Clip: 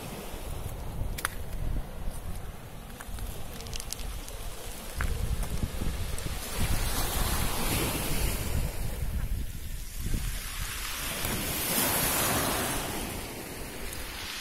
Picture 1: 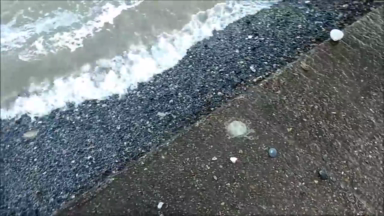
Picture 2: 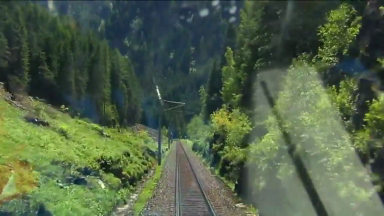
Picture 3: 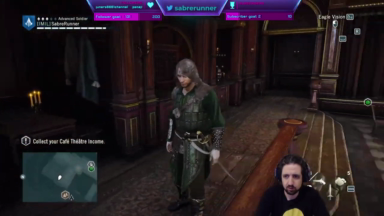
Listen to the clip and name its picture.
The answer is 1